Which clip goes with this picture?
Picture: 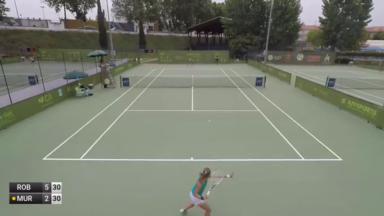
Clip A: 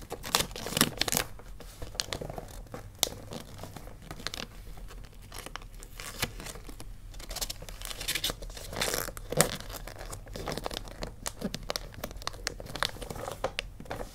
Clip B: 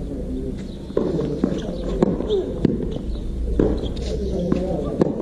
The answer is B